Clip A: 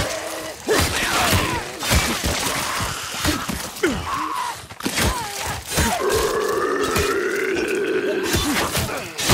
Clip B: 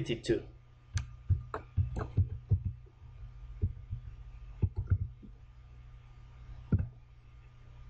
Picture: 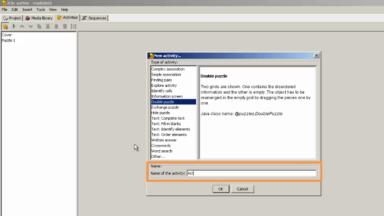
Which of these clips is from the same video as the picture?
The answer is B